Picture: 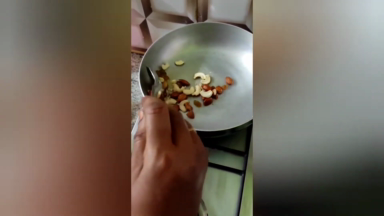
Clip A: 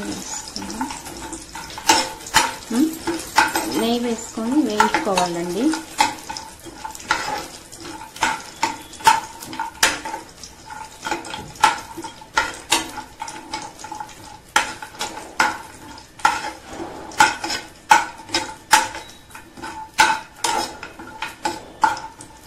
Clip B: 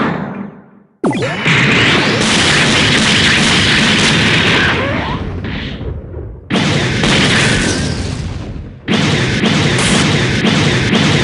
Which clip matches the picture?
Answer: A